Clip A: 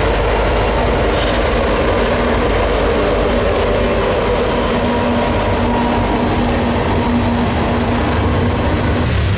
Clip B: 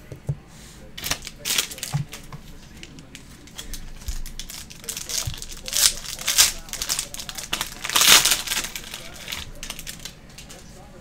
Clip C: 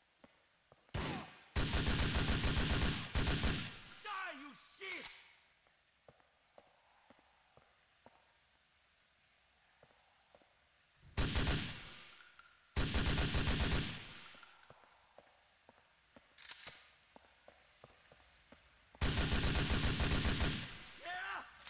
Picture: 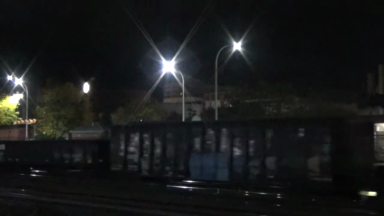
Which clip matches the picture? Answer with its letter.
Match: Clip A